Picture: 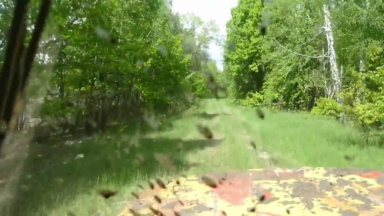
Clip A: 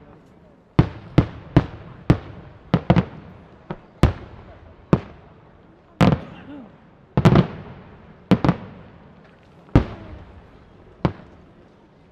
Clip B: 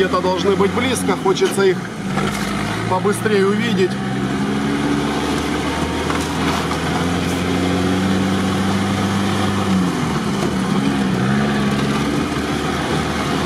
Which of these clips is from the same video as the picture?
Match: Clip B